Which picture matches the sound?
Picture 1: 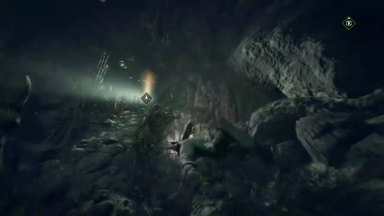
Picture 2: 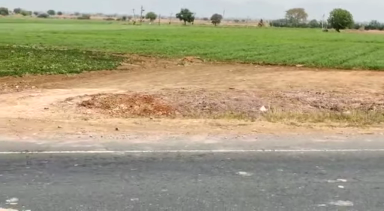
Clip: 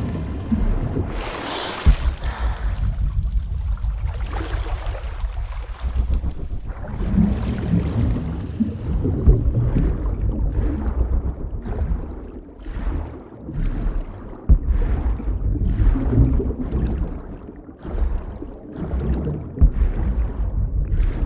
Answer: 1